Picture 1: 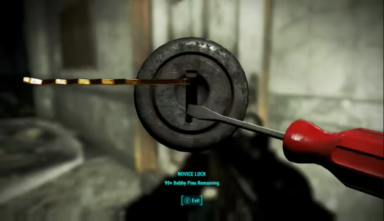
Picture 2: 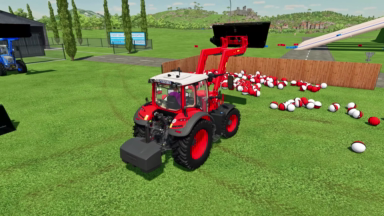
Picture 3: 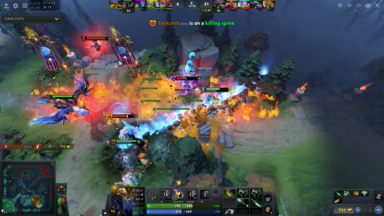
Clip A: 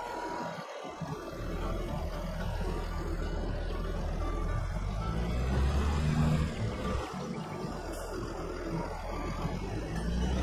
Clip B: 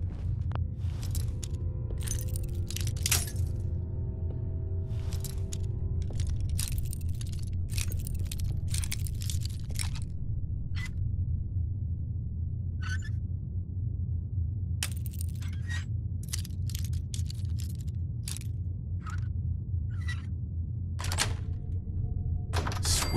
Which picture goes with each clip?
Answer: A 2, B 1